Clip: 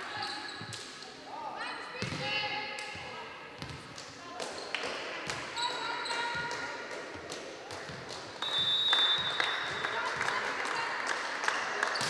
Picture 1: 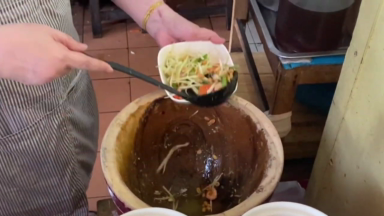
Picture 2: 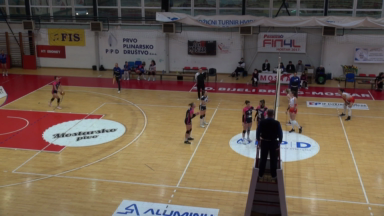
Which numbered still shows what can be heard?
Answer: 2